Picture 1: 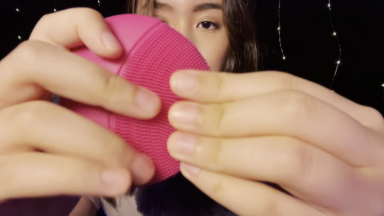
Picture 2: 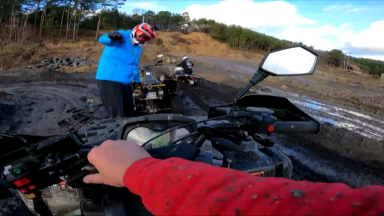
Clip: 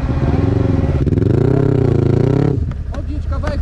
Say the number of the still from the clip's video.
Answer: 2